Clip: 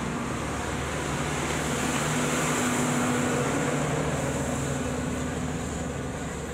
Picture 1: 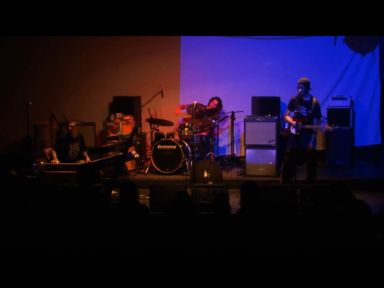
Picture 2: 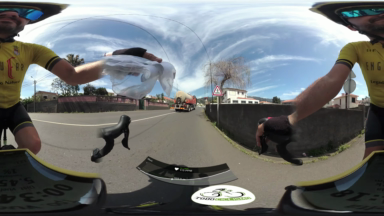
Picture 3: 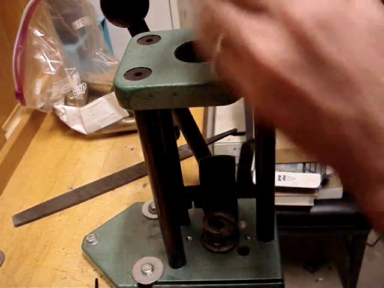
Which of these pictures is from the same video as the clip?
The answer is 2